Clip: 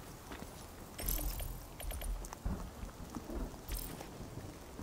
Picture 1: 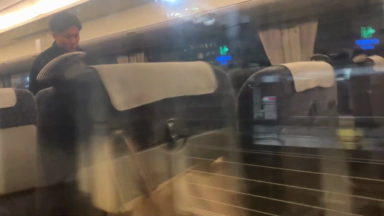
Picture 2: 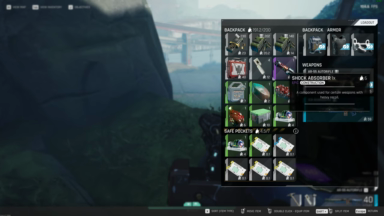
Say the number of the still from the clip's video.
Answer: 2